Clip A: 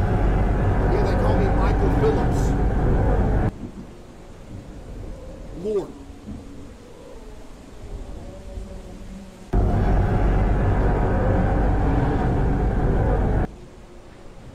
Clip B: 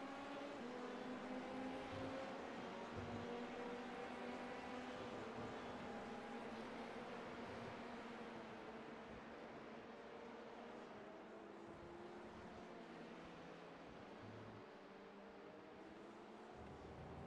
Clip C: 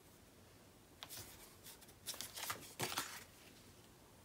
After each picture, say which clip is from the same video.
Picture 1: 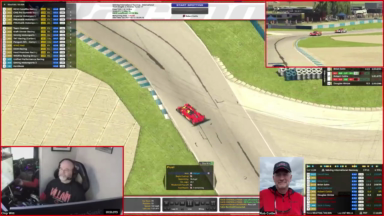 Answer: B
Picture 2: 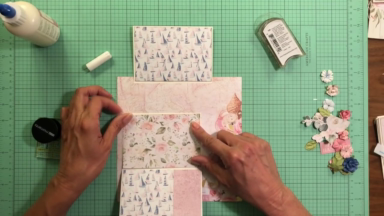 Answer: C